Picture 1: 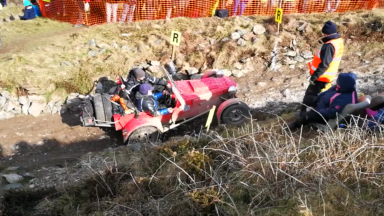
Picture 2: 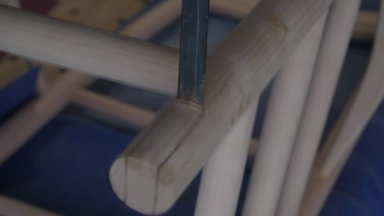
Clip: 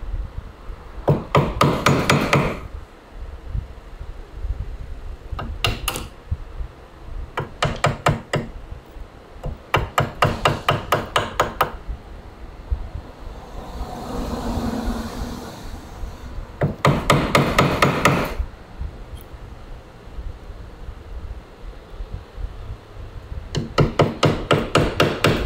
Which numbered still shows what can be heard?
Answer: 2